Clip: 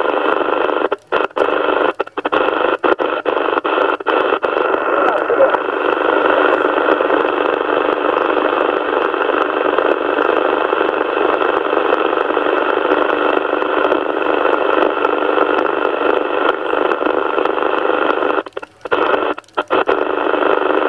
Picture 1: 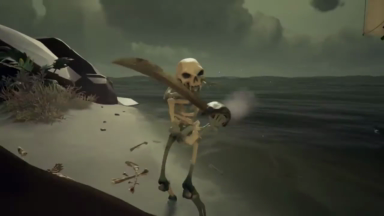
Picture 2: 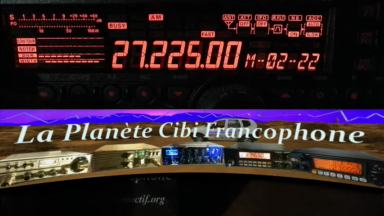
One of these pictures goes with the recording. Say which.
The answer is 2